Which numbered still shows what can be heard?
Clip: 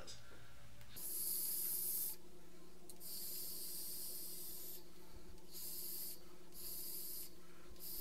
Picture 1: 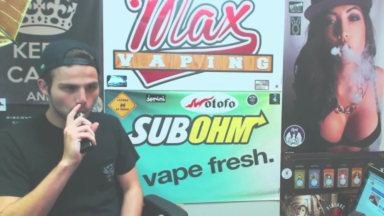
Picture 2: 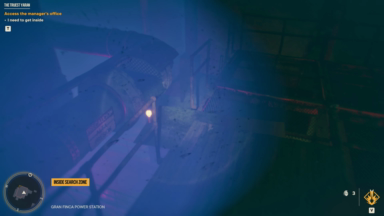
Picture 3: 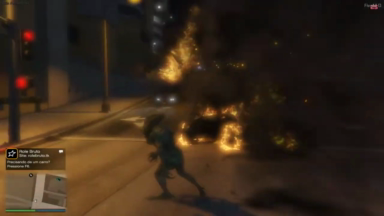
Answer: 1